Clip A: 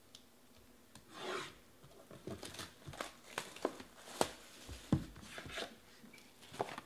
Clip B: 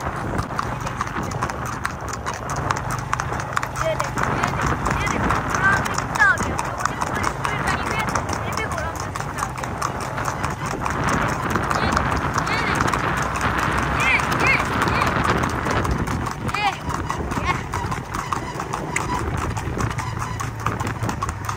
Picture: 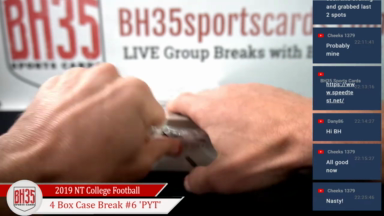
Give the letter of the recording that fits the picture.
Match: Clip A